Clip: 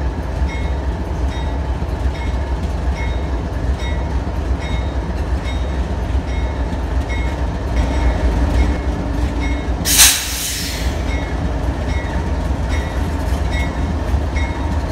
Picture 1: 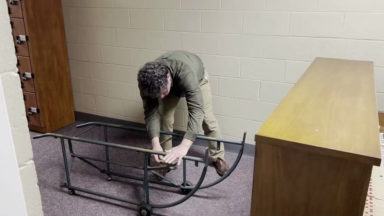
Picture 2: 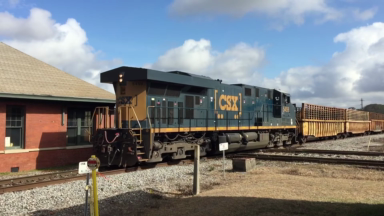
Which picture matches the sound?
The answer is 2